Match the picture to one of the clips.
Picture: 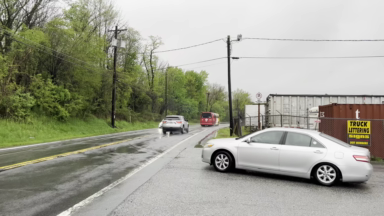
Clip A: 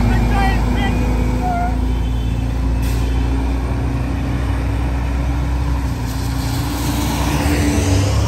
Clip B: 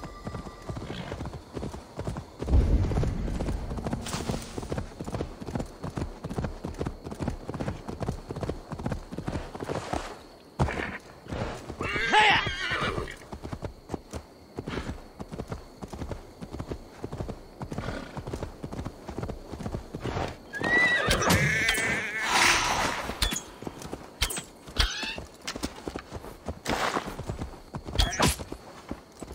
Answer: A